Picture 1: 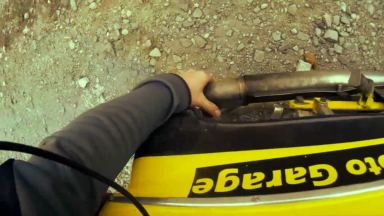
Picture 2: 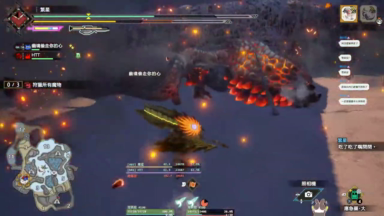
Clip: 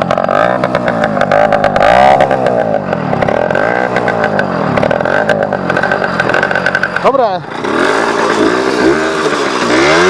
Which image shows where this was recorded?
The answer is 1